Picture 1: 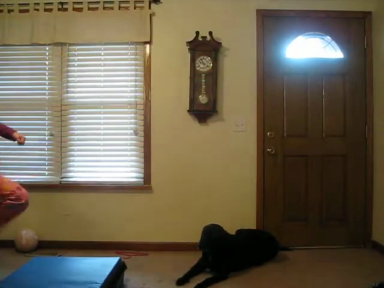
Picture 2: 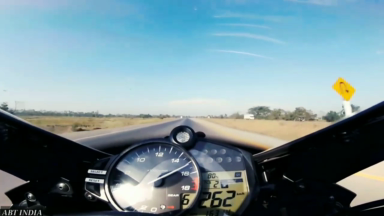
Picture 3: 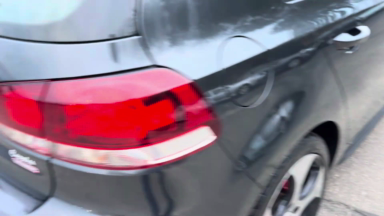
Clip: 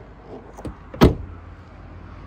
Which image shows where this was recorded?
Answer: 3